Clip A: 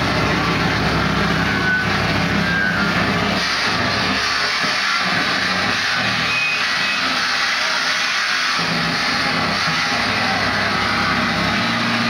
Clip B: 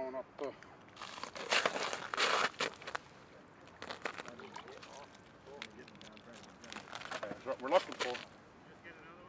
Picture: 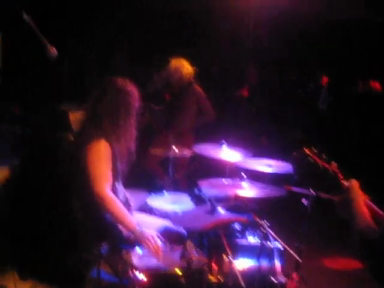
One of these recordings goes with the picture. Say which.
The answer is A